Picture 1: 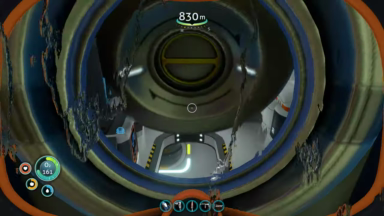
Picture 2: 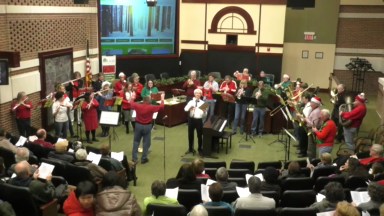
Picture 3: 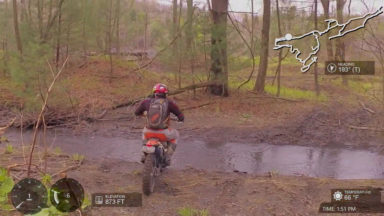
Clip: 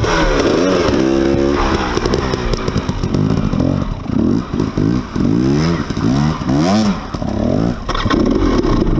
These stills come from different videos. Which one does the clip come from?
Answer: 3